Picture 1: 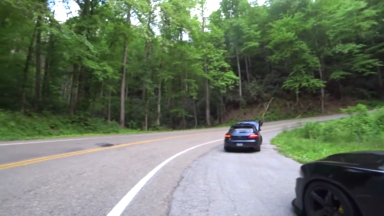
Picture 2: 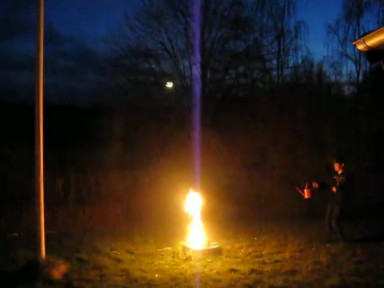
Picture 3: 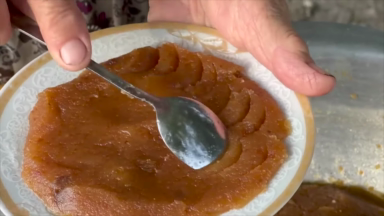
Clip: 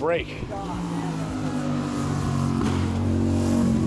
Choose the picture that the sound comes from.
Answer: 1